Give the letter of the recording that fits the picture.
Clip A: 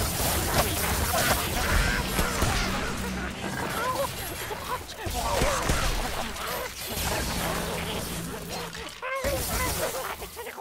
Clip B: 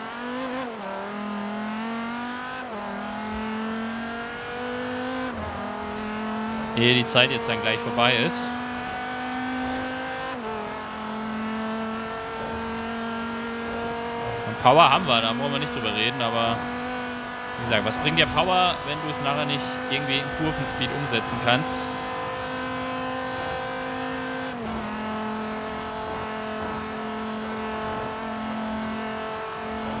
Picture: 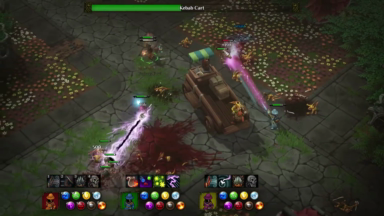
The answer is A